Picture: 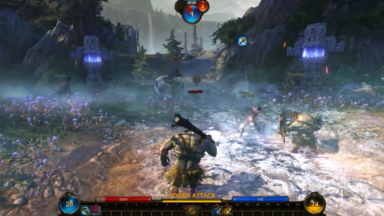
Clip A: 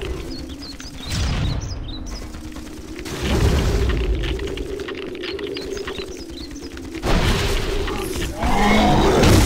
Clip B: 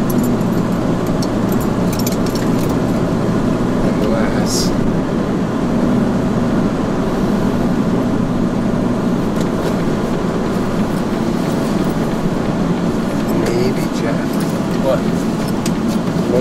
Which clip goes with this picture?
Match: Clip A